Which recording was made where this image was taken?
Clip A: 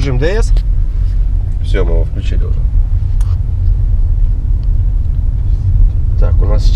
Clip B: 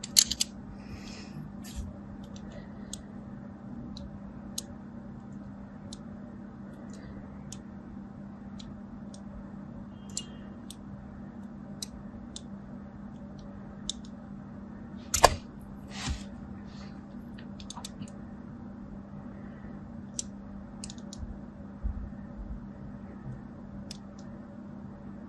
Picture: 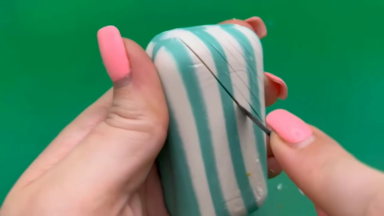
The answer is B